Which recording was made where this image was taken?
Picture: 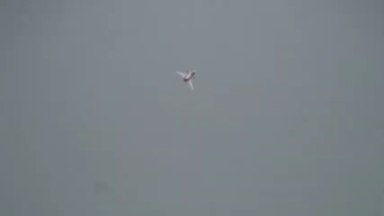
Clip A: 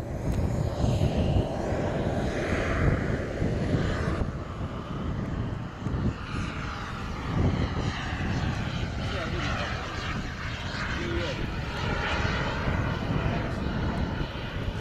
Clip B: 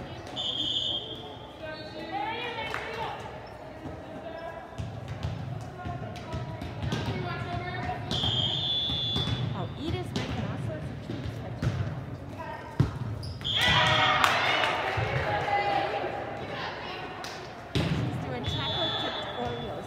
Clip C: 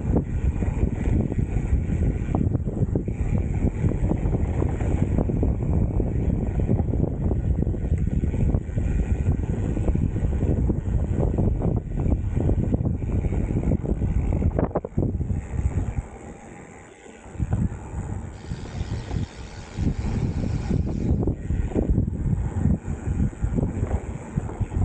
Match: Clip A